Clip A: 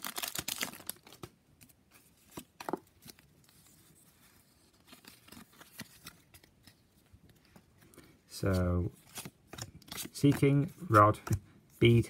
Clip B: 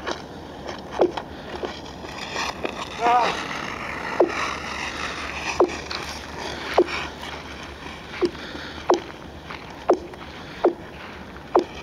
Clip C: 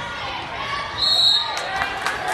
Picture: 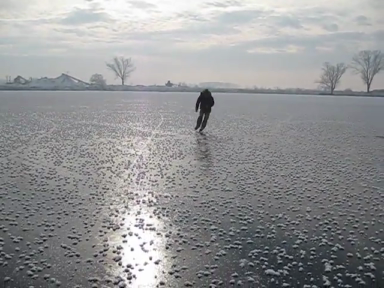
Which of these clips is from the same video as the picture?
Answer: B